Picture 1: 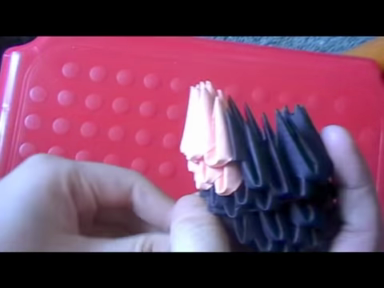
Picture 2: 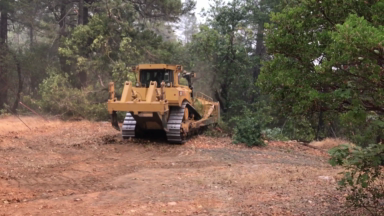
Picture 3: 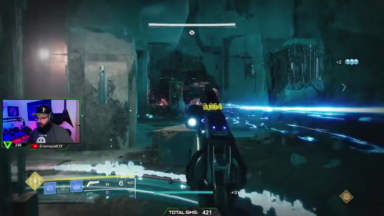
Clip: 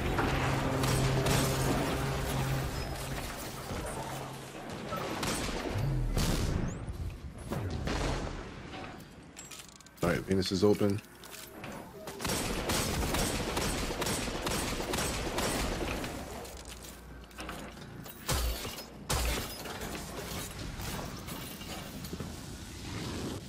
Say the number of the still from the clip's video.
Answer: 3